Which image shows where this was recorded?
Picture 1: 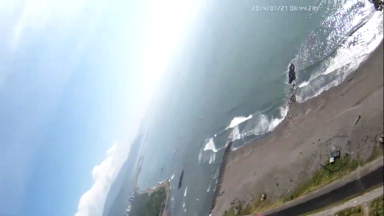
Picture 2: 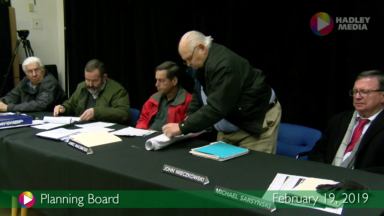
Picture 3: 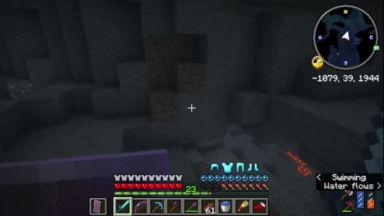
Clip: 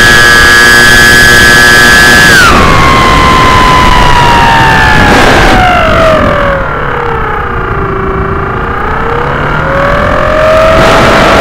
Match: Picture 1